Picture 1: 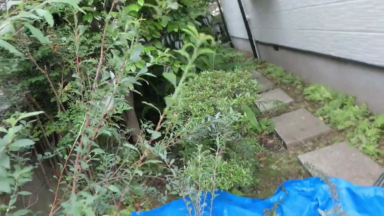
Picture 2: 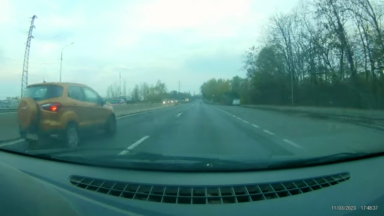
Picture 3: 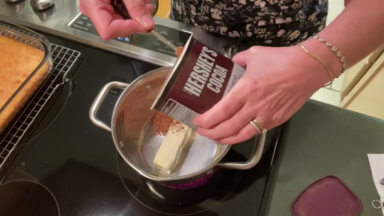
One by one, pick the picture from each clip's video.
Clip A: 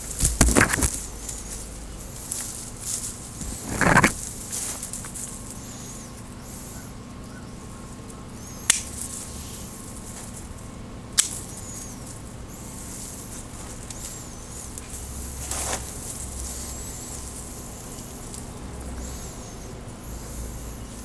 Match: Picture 1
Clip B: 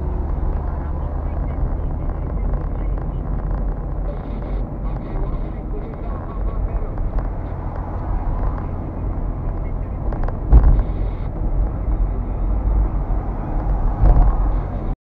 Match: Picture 2